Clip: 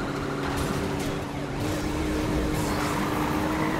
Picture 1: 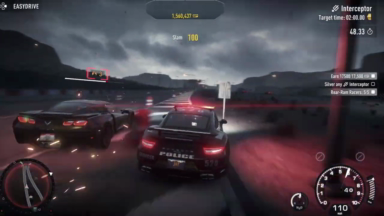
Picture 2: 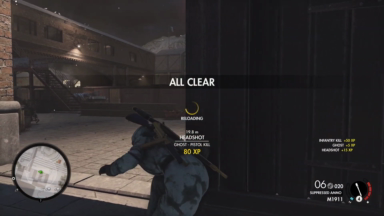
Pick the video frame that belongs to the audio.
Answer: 1